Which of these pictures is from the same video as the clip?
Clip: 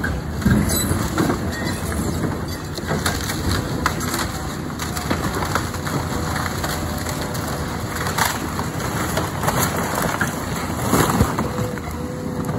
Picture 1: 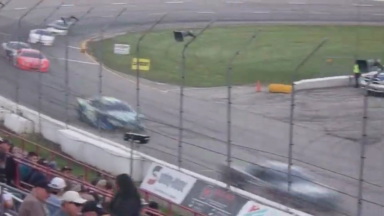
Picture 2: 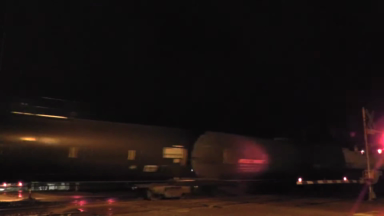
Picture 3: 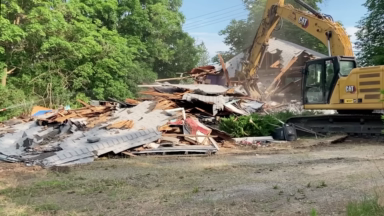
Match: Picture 3